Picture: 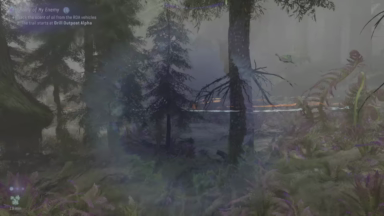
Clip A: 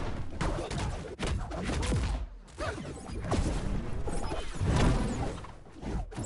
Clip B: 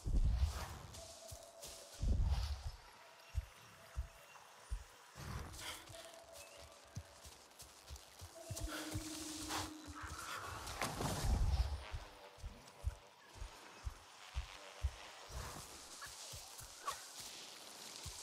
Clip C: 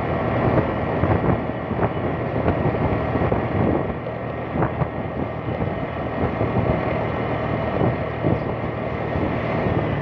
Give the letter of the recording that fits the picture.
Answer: B